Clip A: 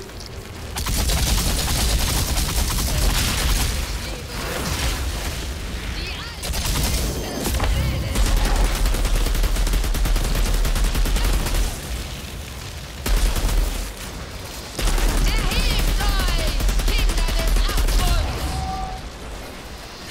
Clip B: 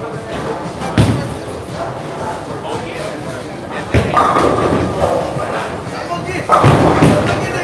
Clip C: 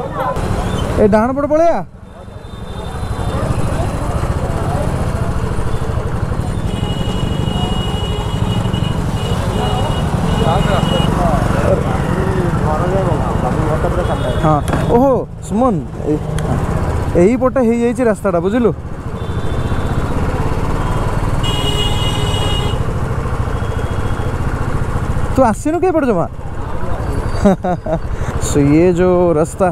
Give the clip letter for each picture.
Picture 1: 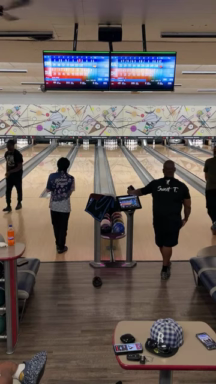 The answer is B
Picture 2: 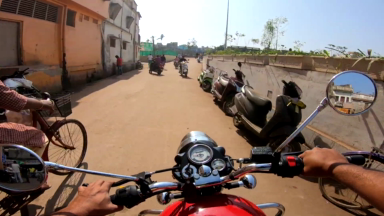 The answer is C